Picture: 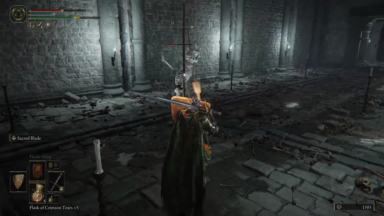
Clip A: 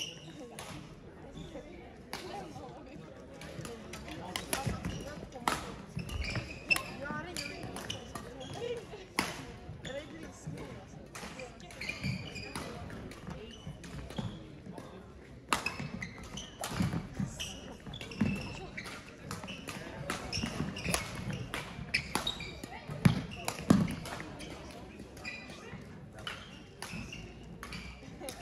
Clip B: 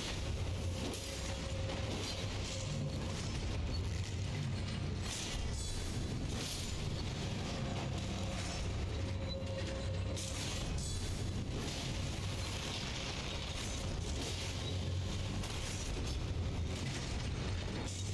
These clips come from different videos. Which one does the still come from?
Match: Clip B